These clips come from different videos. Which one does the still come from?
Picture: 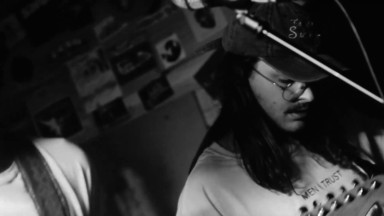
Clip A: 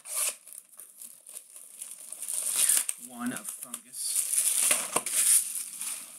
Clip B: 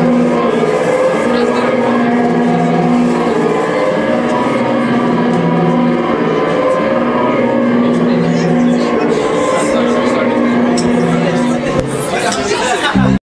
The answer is B